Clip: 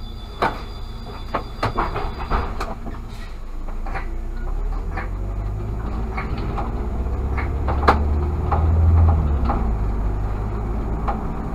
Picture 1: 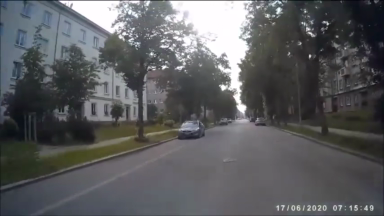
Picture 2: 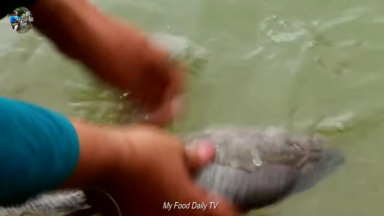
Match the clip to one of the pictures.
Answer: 1